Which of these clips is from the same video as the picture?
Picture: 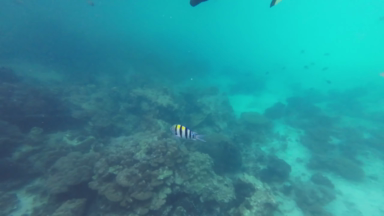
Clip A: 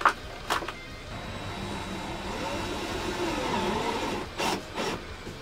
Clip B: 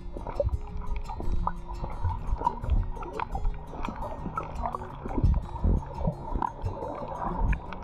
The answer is B